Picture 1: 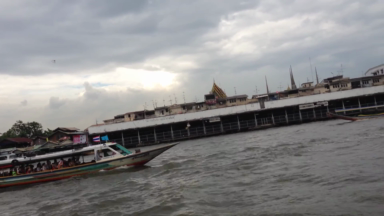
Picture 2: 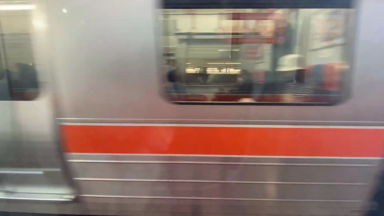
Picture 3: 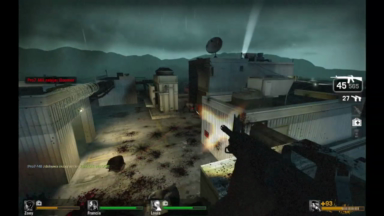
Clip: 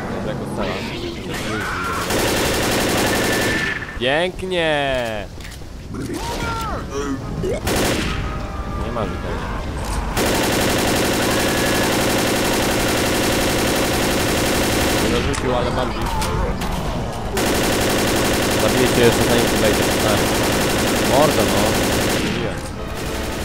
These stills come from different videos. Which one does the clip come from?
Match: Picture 3